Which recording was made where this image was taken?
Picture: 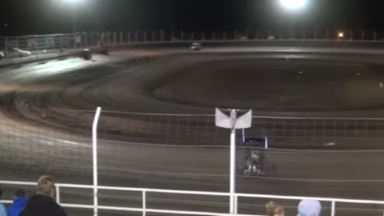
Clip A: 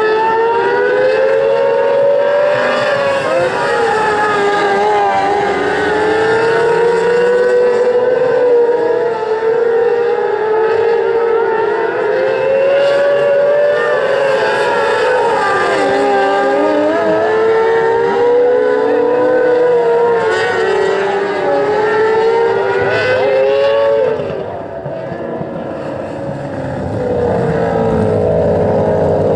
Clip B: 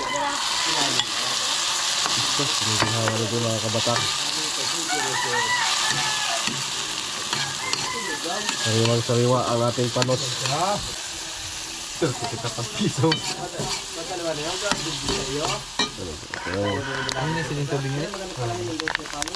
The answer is A